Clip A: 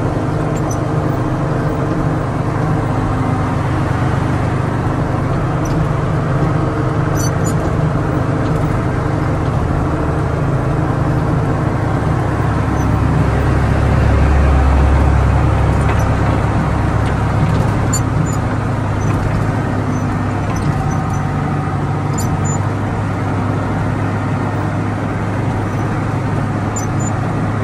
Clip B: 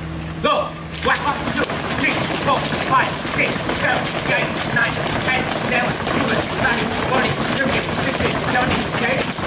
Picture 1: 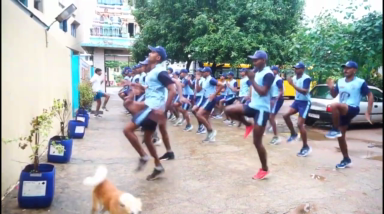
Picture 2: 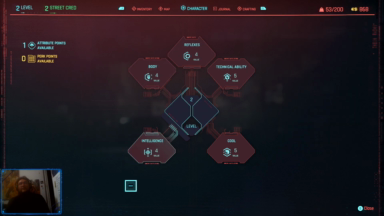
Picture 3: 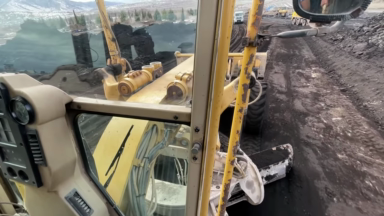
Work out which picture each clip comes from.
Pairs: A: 3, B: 1